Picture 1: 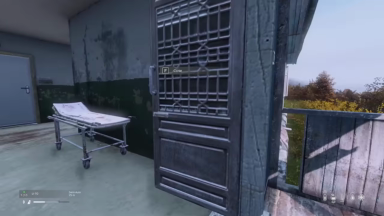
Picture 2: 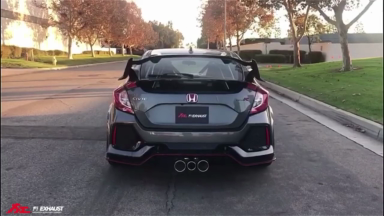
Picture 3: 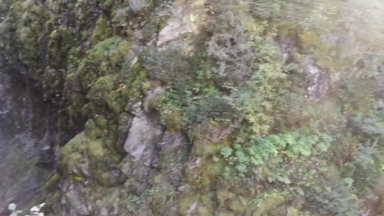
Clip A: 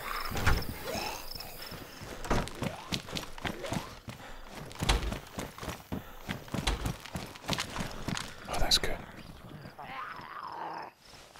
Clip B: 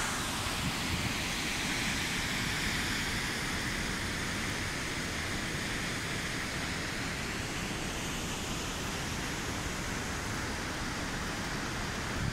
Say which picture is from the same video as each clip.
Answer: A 1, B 3